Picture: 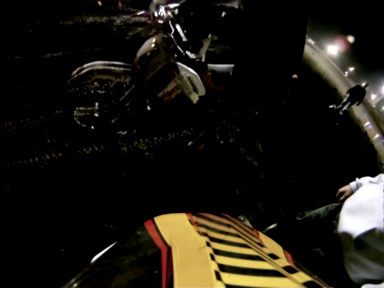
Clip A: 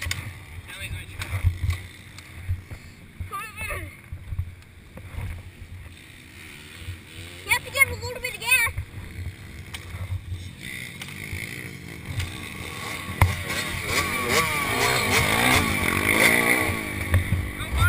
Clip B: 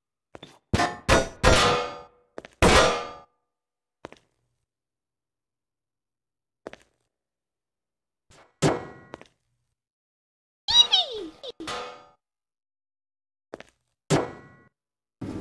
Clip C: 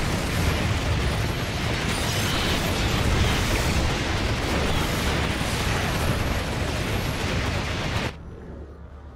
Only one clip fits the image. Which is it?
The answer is A